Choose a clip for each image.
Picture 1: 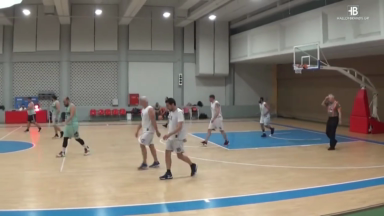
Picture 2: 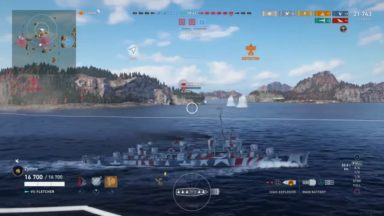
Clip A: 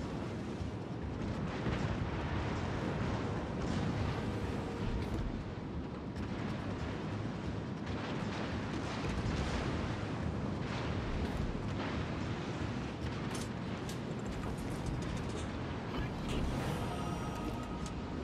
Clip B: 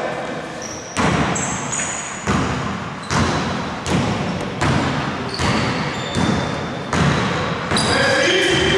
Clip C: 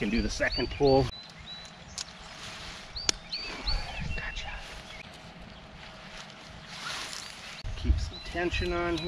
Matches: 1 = B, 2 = A